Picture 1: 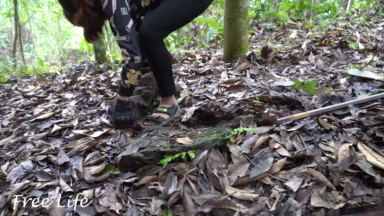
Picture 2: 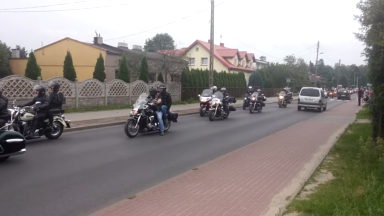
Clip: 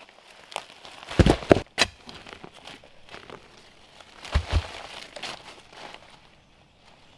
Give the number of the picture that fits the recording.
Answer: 1